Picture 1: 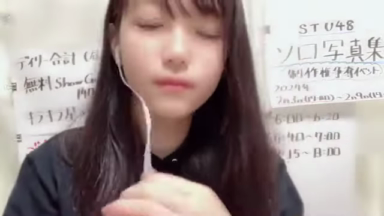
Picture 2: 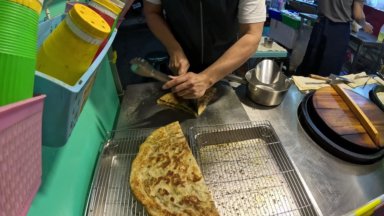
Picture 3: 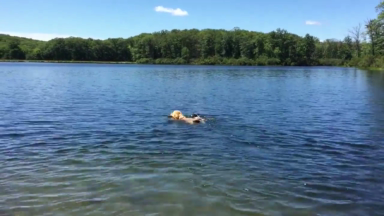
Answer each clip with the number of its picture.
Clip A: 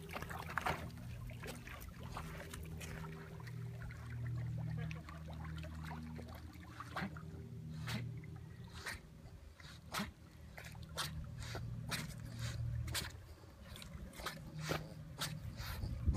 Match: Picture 3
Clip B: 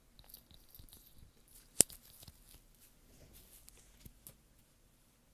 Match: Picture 1